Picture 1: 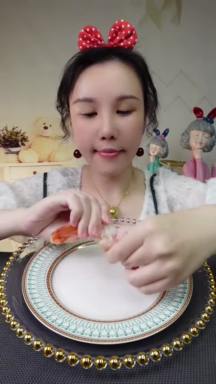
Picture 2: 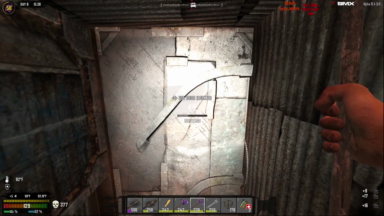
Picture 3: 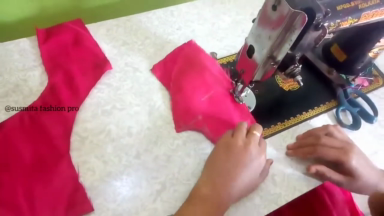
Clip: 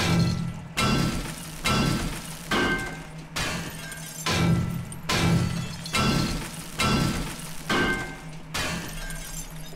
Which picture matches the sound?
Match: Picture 2